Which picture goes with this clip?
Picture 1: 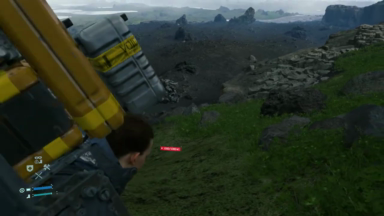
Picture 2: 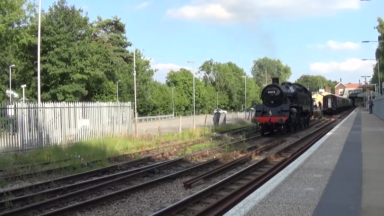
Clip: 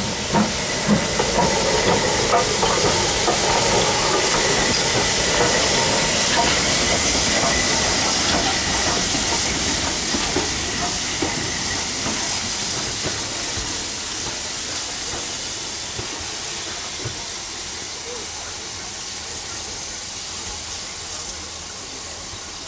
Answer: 2